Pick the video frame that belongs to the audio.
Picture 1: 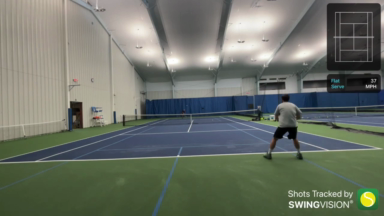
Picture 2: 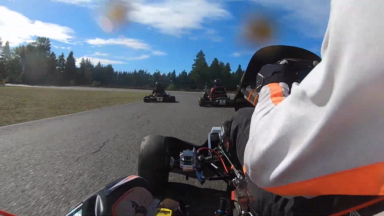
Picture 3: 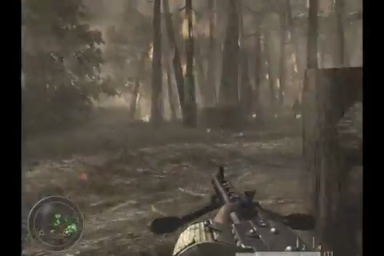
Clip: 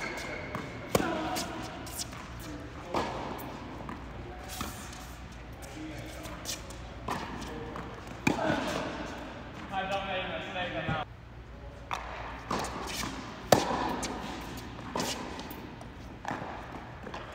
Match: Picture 1